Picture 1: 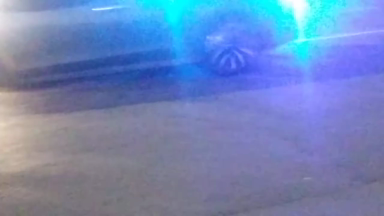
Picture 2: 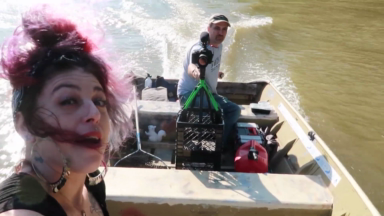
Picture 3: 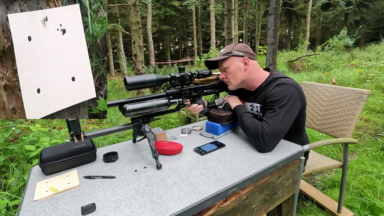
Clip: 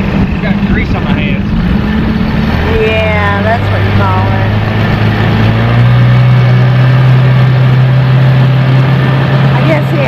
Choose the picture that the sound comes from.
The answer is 2